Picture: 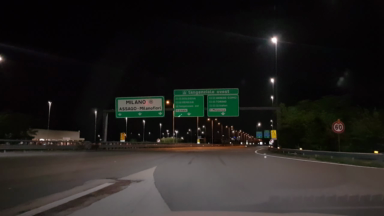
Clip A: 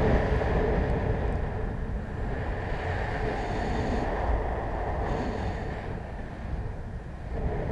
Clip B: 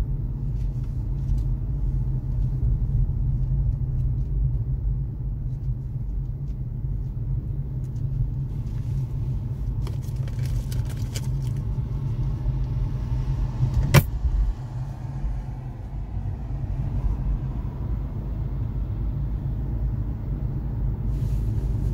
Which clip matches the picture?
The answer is B